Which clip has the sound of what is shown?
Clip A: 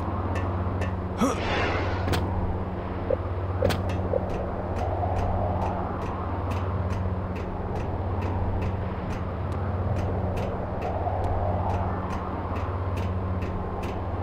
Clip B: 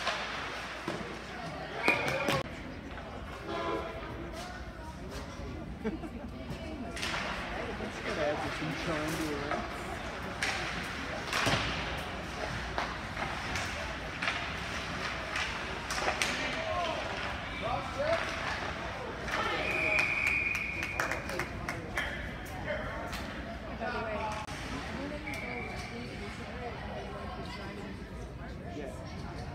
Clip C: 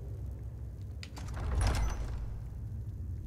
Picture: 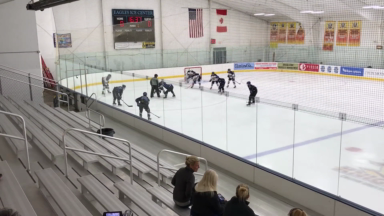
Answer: B